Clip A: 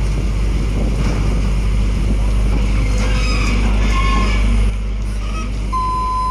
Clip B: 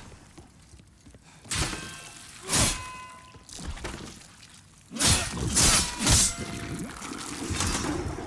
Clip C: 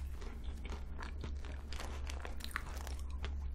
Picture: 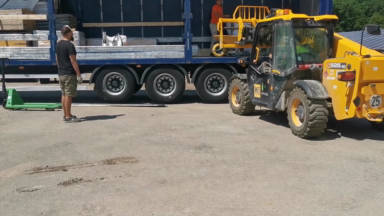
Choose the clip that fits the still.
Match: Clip A